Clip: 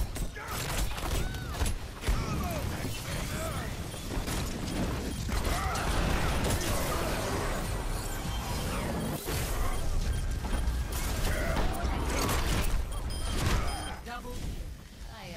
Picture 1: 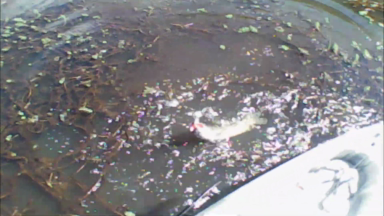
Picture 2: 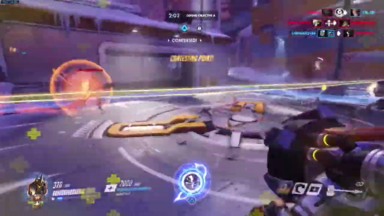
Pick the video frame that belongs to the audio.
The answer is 2